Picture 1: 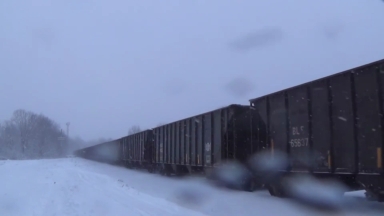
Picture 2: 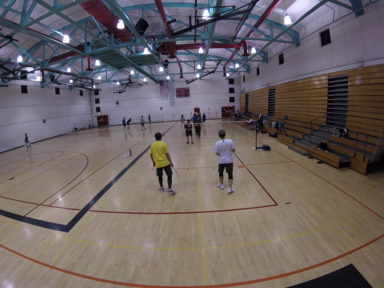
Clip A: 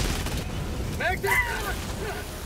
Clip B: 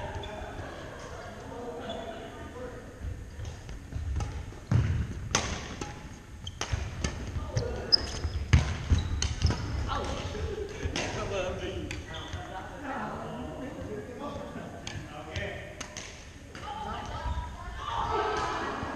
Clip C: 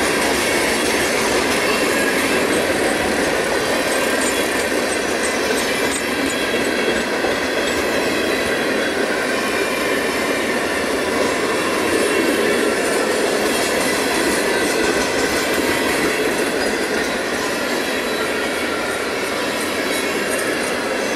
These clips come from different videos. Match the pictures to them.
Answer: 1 C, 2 B